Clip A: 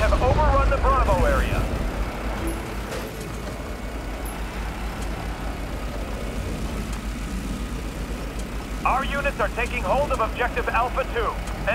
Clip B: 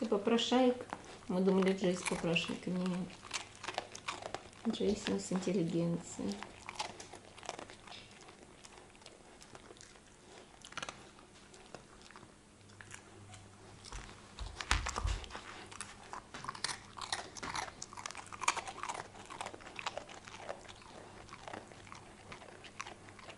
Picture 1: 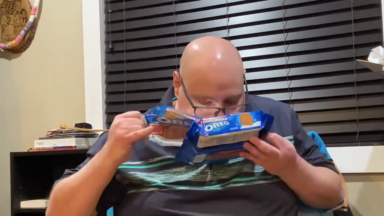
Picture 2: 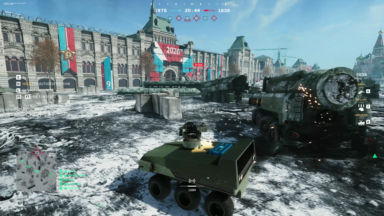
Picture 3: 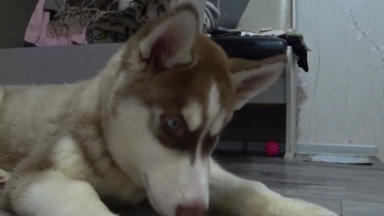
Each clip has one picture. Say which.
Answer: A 2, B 3